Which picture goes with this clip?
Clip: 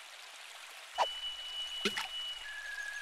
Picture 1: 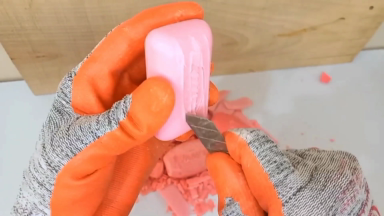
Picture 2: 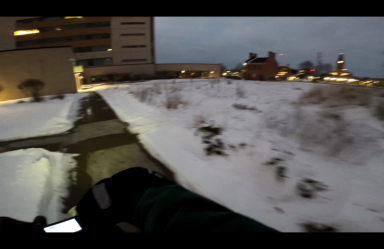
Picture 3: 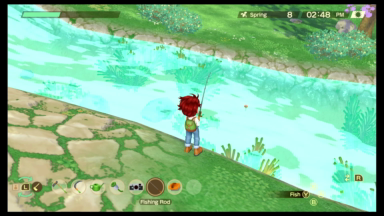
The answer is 3